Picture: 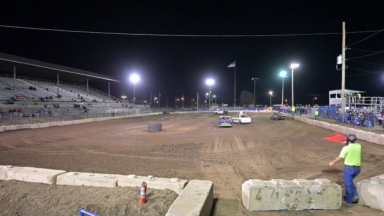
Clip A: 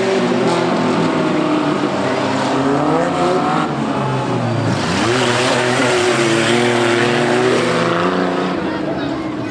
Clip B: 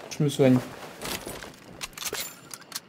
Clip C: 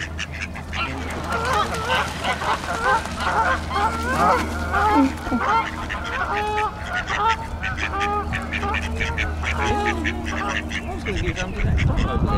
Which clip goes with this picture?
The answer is A